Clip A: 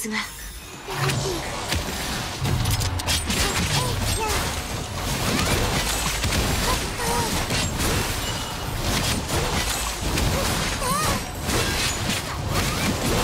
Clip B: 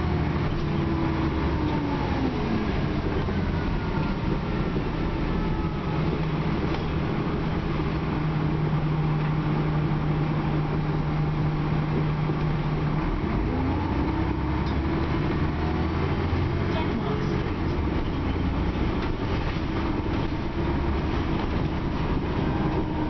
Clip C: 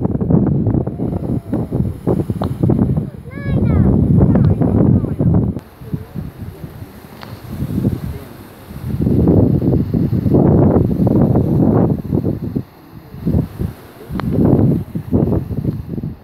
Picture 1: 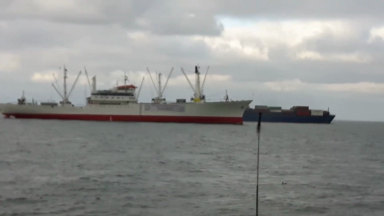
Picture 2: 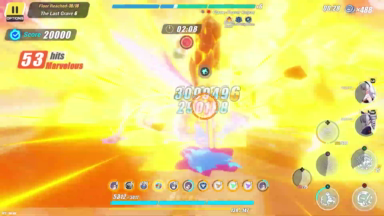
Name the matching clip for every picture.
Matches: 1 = C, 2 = A